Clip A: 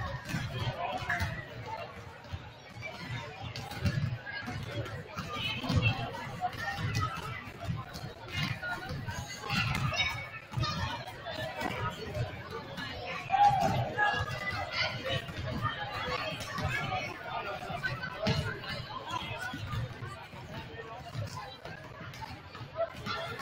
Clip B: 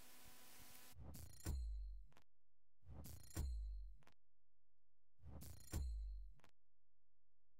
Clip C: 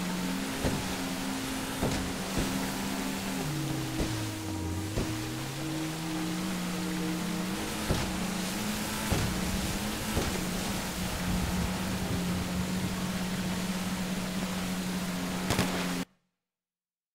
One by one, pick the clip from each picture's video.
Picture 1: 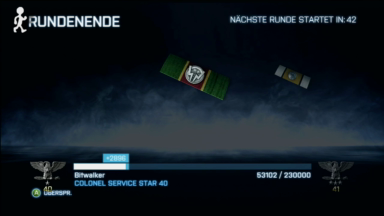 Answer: B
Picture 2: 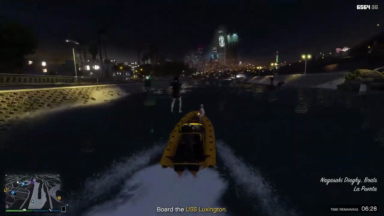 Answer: C